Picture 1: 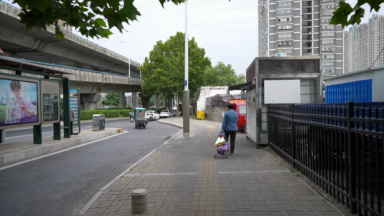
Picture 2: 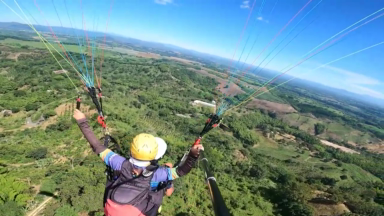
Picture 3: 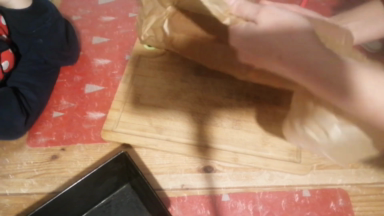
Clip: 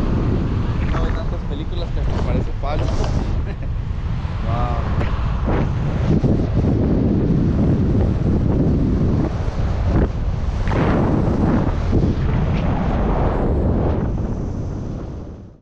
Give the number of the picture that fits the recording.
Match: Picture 2